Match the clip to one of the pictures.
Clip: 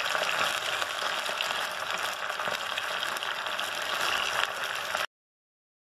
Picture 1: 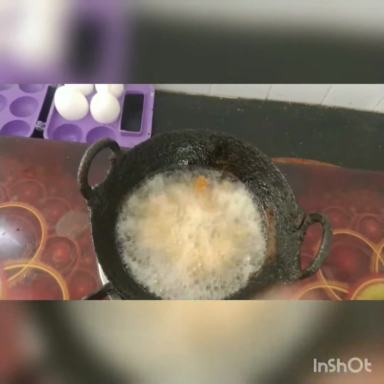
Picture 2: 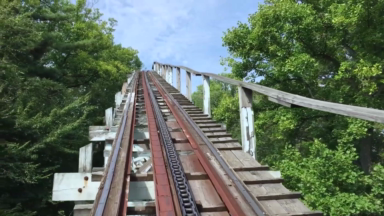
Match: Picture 1